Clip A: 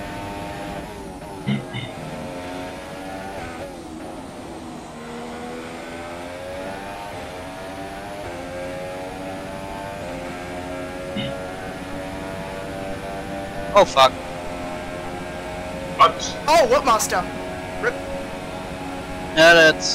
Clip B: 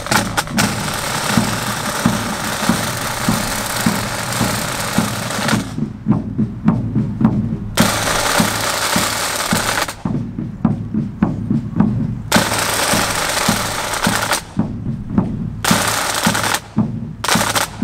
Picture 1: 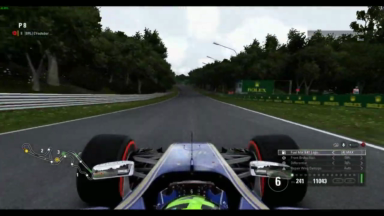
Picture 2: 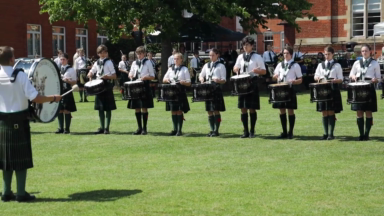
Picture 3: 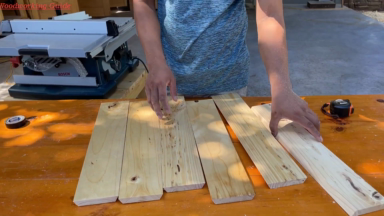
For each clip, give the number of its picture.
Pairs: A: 1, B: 2